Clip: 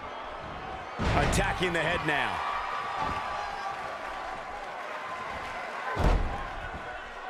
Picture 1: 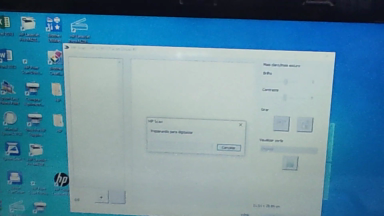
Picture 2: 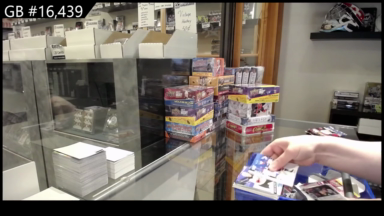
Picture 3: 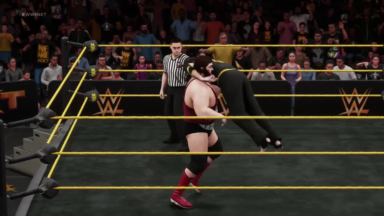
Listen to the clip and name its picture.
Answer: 3